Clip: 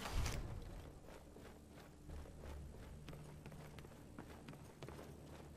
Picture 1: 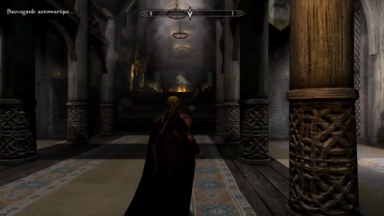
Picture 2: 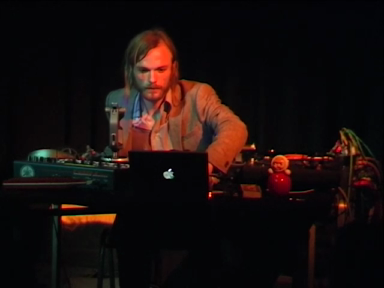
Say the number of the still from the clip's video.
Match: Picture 1